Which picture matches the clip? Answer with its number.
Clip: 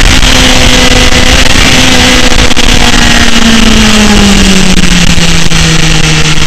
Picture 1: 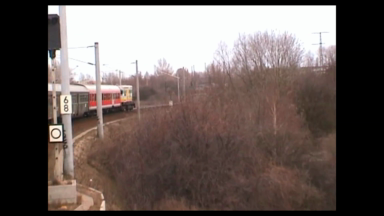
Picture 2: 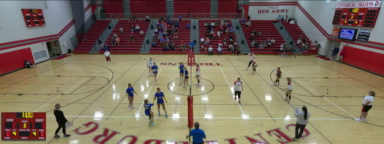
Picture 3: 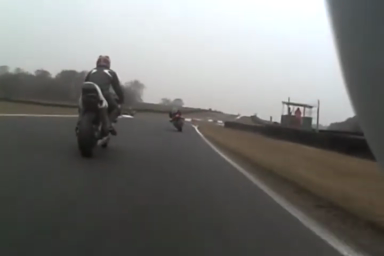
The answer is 3